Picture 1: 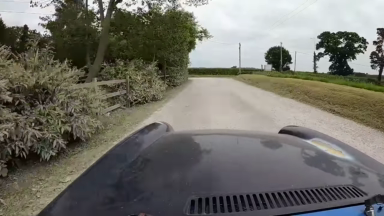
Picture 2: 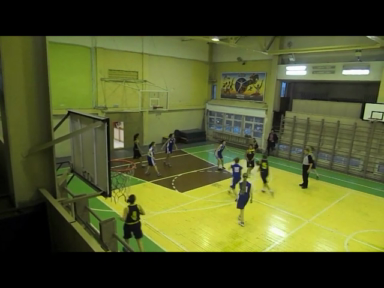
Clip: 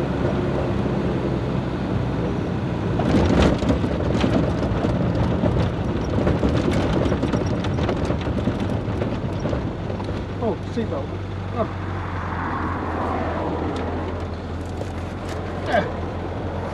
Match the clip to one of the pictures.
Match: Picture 1